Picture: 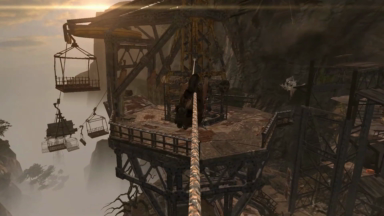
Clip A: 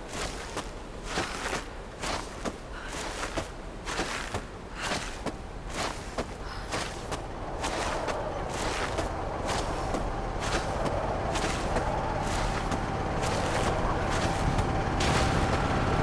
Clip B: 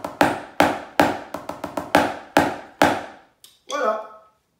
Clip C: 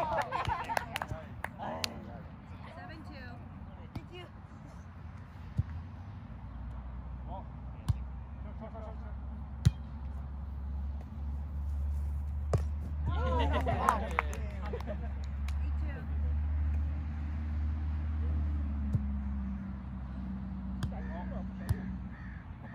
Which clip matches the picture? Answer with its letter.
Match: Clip A